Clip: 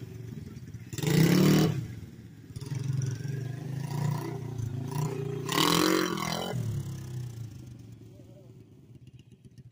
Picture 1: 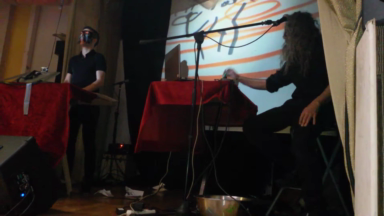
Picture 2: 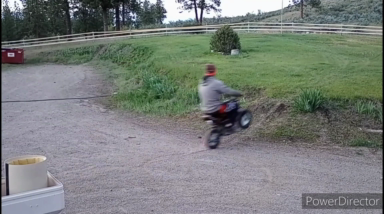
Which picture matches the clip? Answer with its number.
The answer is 2